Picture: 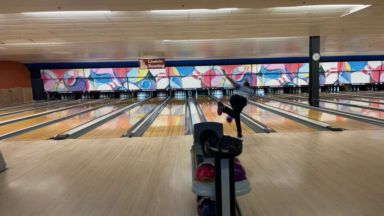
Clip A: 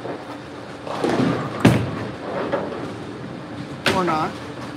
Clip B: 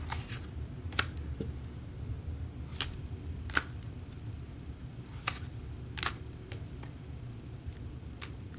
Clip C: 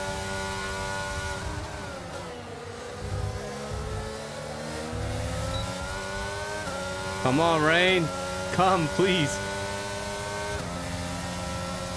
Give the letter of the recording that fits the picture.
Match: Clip A